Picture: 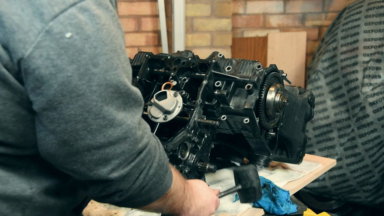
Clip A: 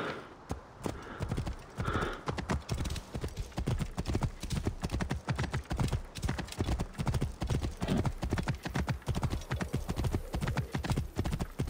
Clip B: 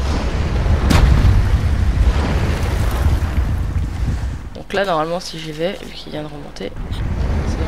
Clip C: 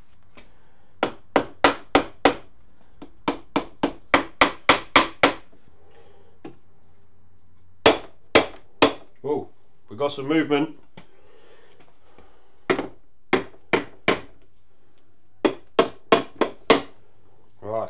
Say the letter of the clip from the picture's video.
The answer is C